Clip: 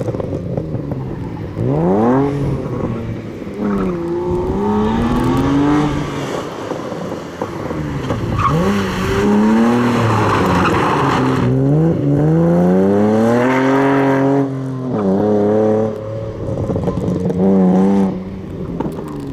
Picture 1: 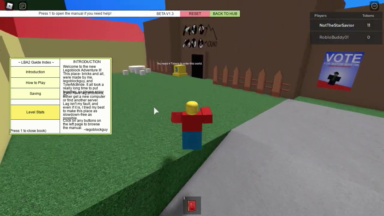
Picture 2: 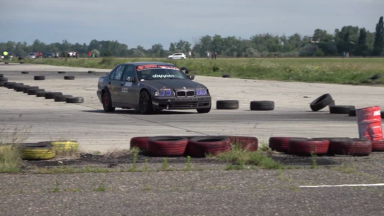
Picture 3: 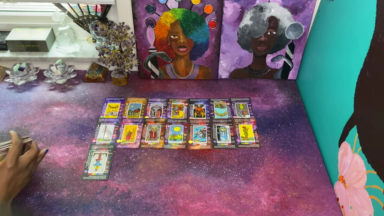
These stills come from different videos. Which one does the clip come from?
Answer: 2